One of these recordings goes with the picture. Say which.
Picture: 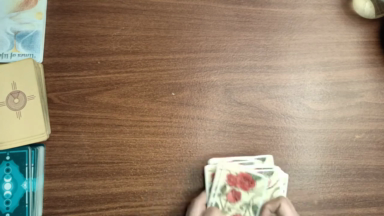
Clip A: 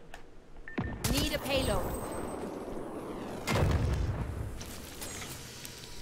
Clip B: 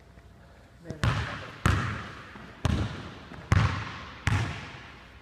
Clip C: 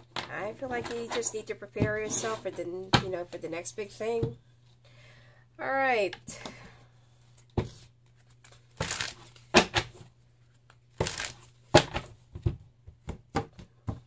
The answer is C